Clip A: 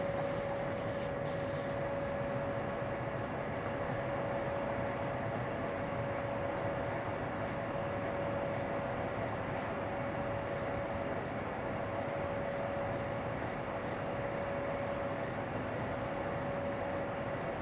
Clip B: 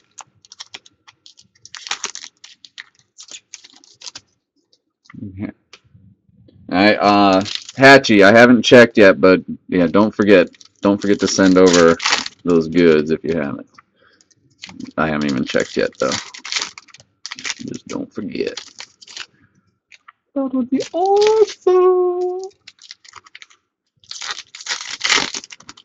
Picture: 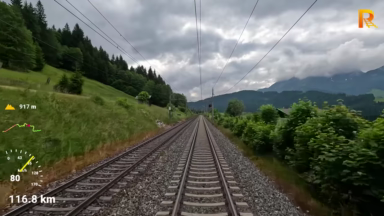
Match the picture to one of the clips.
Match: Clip A